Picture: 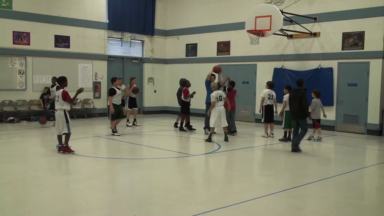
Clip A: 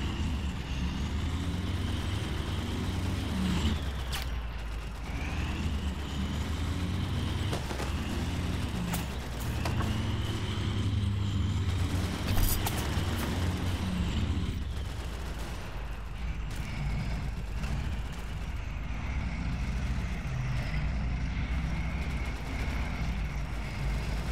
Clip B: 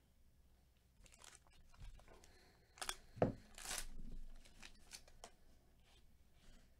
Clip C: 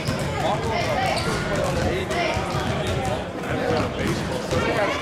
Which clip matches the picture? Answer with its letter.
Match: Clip C